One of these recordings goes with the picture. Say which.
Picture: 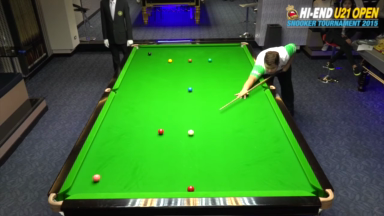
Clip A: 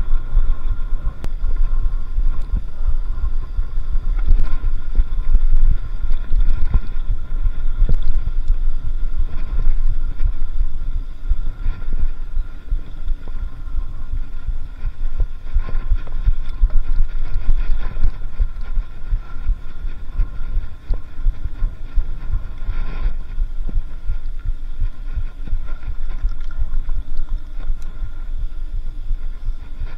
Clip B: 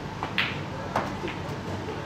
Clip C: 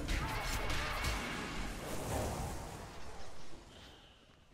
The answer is B